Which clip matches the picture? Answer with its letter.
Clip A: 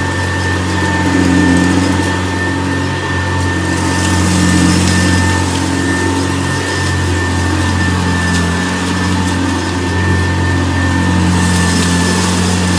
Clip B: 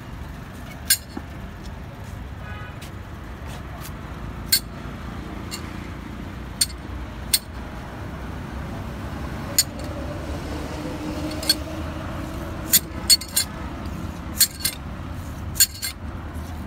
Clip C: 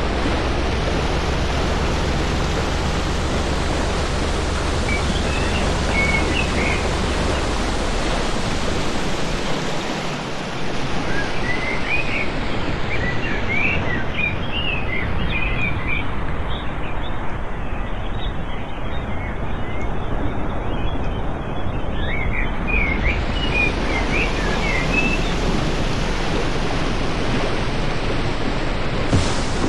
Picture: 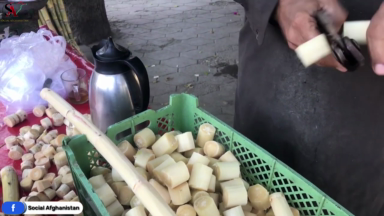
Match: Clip B